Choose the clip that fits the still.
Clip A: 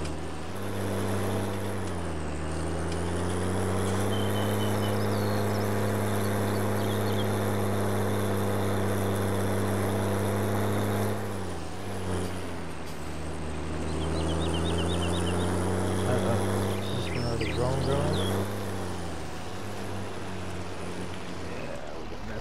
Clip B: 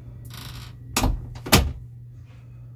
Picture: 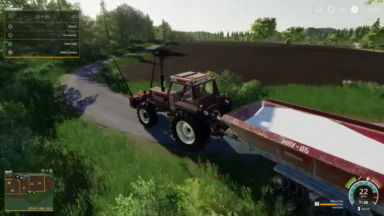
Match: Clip A